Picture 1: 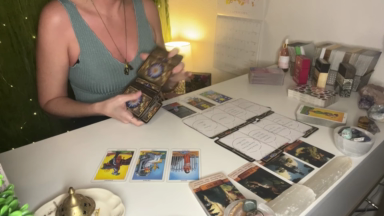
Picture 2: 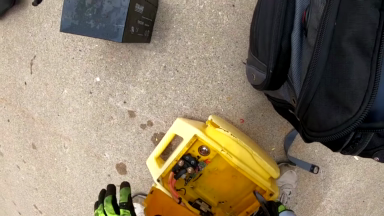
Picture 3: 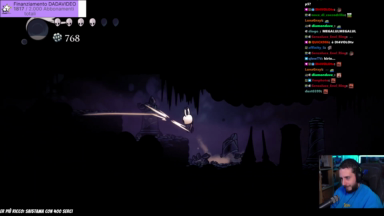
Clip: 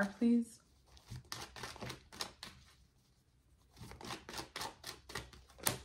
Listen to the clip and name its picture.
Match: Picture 1